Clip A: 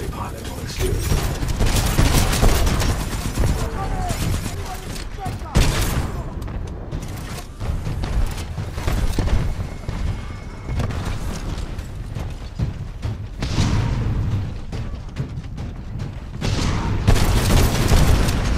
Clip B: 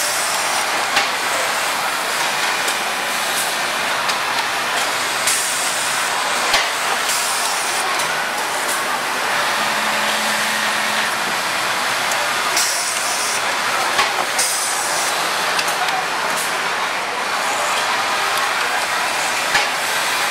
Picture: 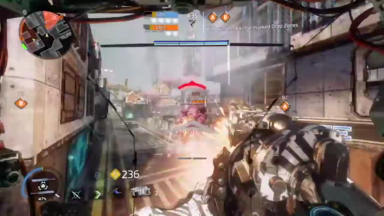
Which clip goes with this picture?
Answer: A